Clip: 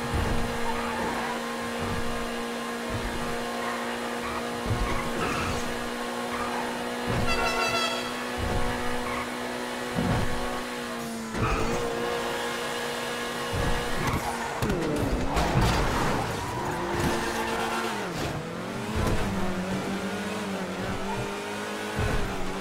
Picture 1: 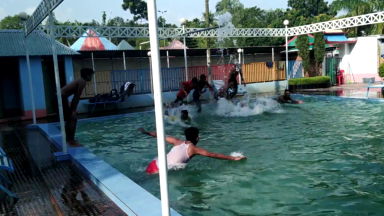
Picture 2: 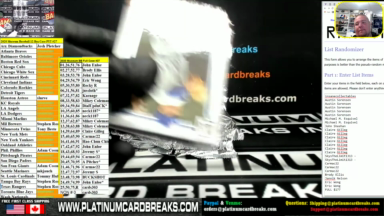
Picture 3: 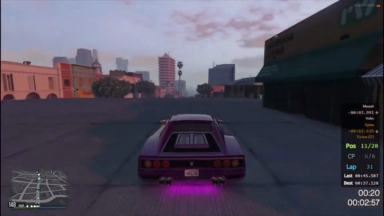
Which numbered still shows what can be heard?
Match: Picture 3